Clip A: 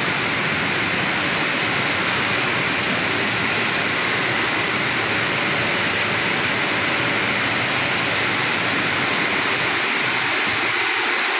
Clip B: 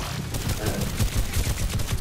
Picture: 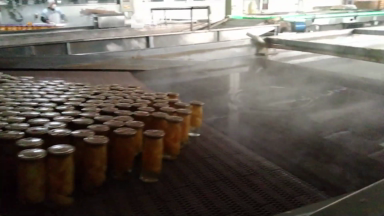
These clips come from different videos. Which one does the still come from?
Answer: A